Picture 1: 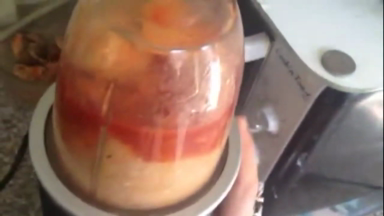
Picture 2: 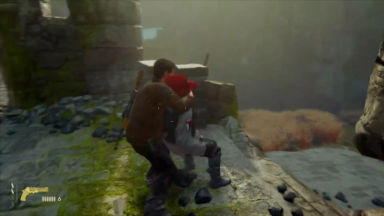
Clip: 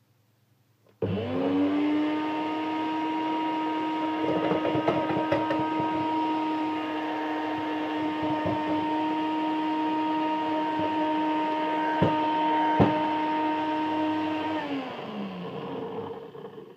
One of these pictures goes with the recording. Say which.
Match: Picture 1